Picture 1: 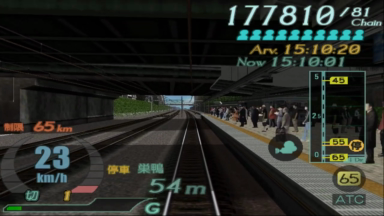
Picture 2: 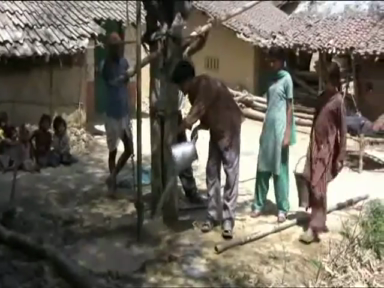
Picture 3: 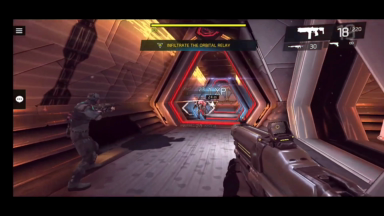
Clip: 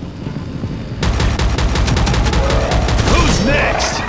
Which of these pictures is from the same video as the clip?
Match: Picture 3